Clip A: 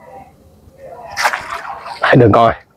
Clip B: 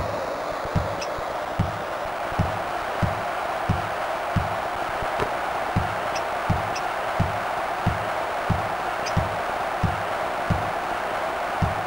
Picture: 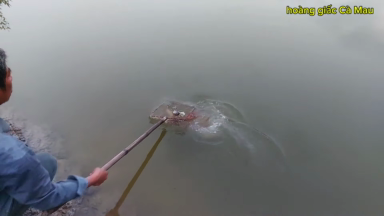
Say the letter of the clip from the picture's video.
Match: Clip A